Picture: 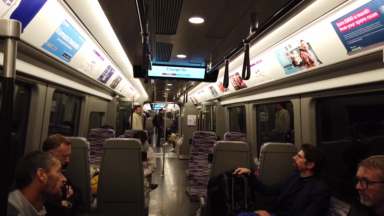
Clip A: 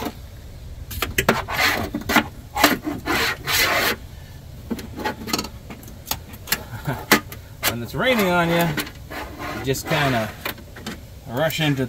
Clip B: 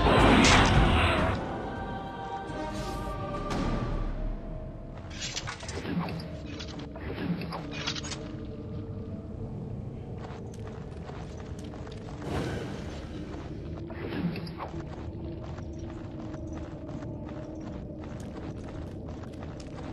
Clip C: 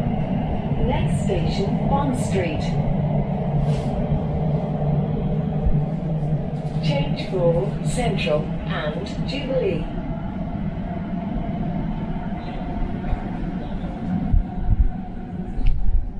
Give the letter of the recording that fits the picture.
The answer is C